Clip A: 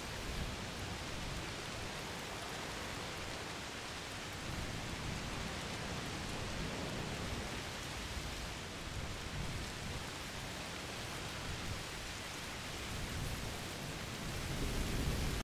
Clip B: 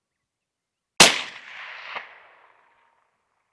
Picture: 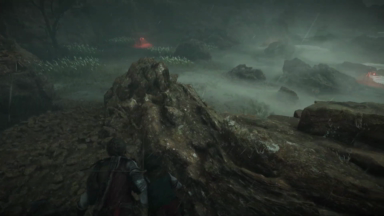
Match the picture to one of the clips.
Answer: A